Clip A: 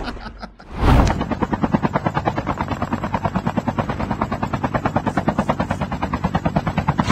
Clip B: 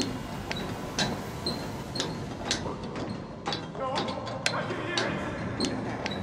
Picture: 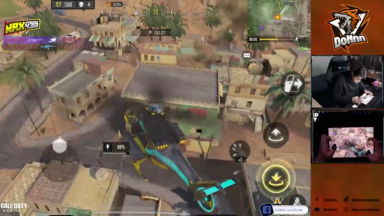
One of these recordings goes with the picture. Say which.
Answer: A